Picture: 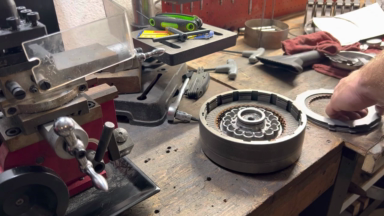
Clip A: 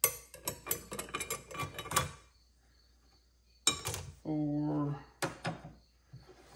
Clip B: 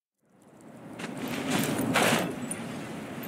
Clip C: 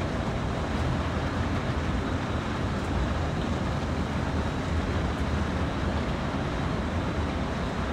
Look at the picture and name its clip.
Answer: A